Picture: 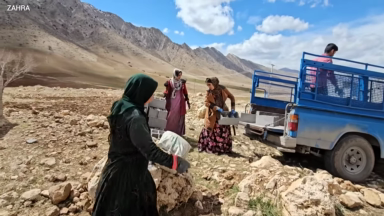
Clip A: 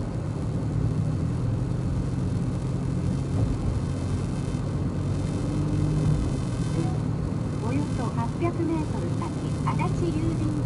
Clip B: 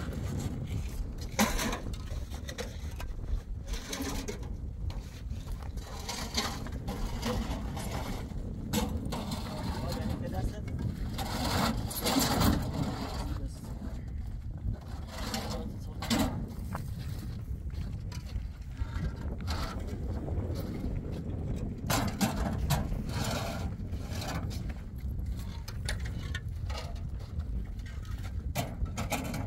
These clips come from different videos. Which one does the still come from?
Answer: B